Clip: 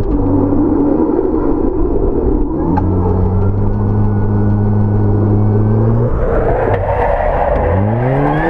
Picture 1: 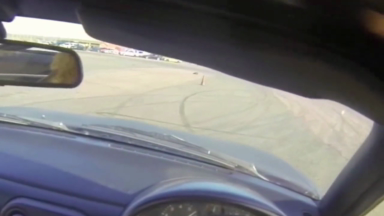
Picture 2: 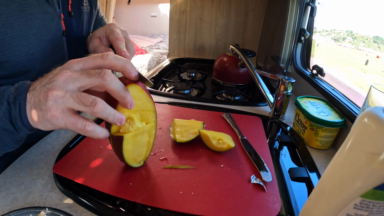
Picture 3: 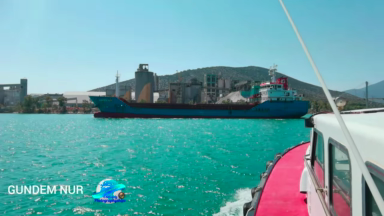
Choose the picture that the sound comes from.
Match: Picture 1